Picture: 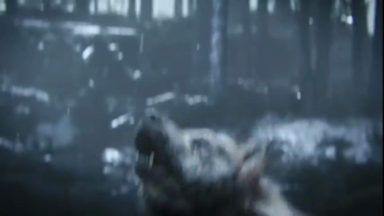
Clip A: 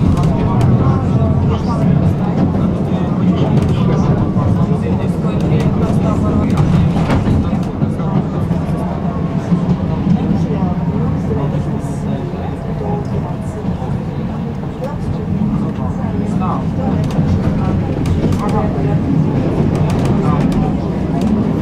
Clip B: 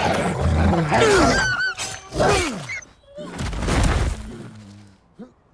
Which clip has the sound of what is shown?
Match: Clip B